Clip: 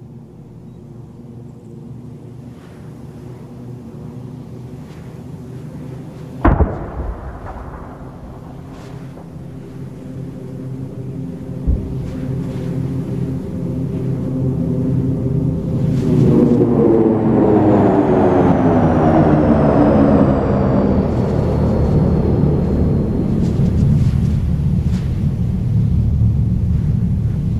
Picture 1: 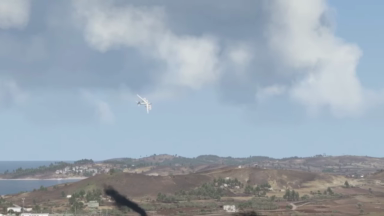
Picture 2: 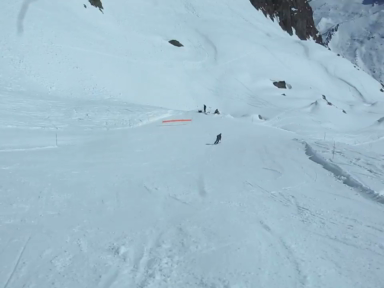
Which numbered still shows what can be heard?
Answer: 1